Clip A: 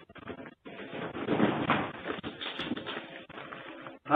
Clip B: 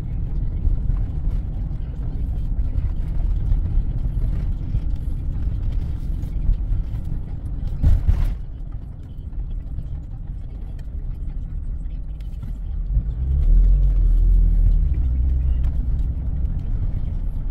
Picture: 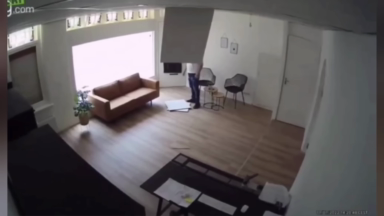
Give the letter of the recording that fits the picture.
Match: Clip A